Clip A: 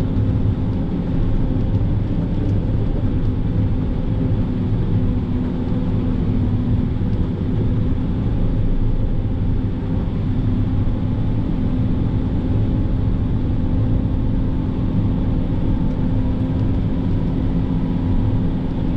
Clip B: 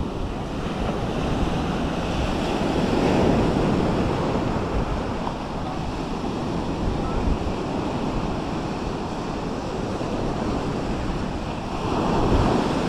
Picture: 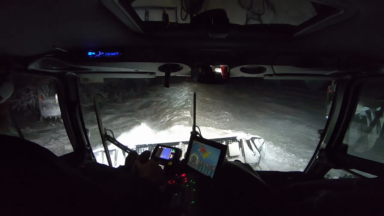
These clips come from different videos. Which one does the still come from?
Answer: A